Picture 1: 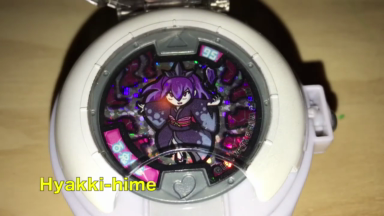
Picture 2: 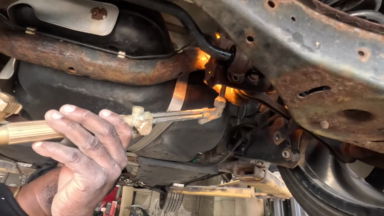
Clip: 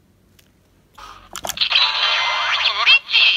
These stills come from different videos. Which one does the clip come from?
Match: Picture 1